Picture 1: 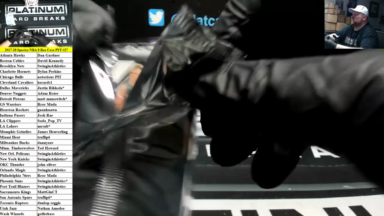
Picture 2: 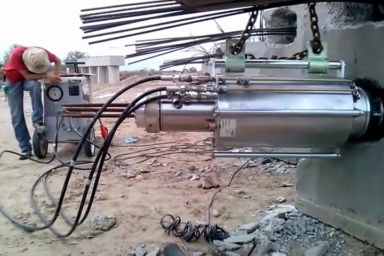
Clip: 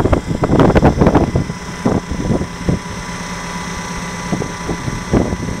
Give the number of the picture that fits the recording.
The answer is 2